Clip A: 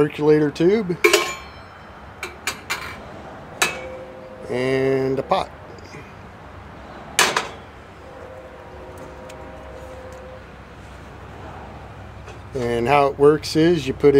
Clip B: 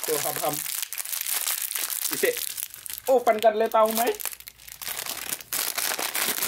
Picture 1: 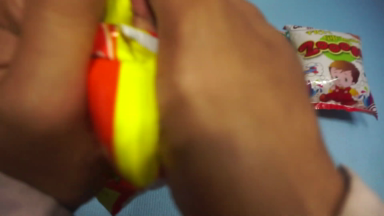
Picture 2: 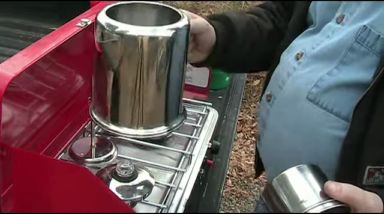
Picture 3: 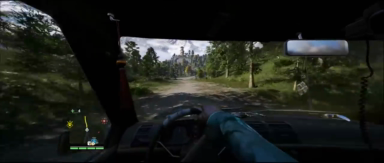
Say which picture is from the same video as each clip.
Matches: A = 2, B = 1